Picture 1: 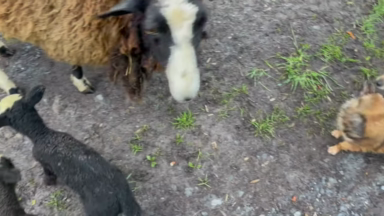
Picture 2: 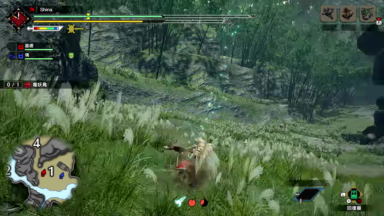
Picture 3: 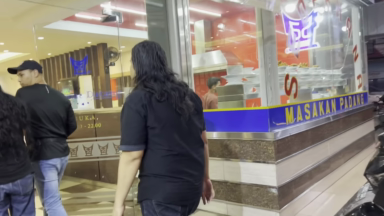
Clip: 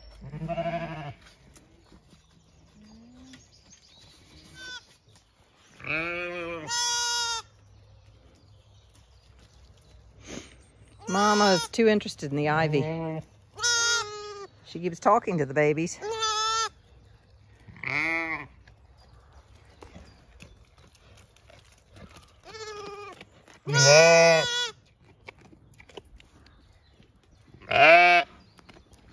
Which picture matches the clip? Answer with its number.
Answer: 1